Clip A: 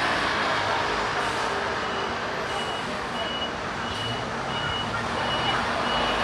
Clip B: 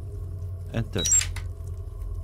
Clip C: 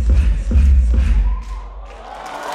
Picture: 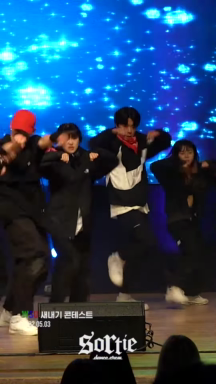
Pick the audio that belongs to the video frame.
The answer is C